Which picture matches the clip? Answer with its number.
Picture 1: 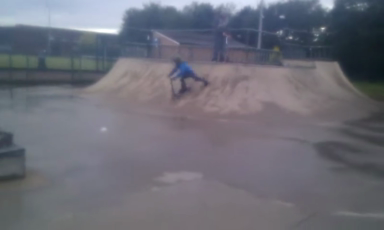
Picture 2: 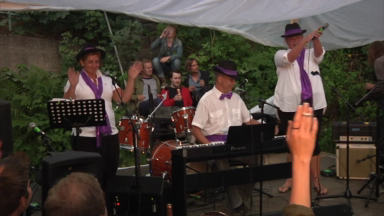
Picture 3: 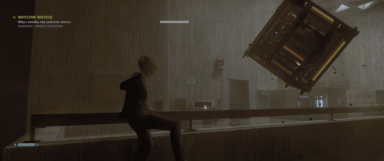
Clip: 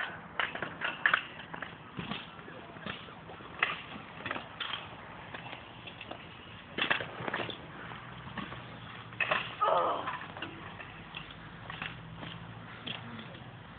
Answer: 1